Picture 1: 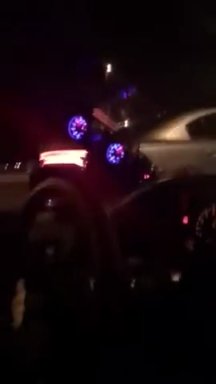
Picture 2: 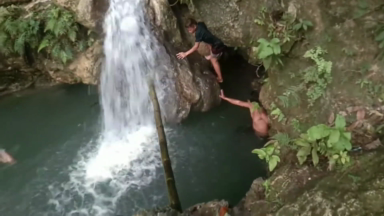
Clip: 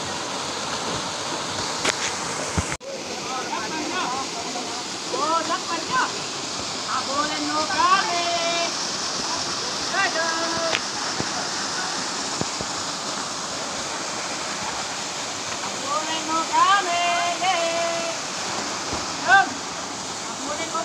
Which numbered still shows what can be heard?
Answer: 2